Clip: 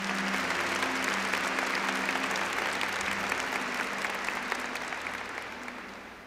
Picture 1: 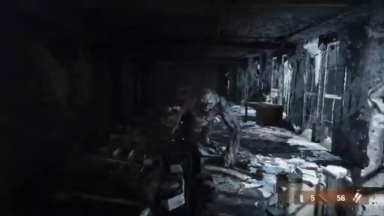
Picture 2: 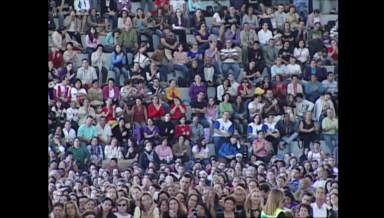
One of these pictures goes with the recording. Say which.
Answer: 2